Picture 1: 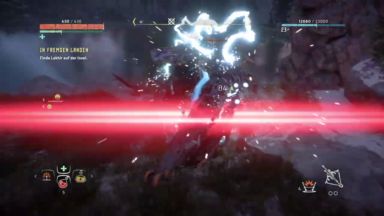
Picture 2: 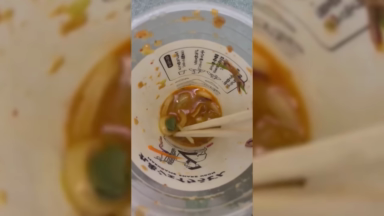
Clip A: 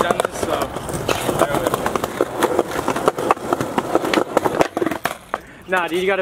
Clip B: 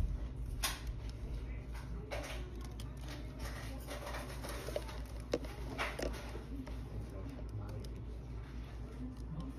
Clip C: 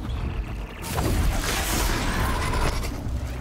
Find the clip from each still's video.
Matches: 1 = C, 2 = B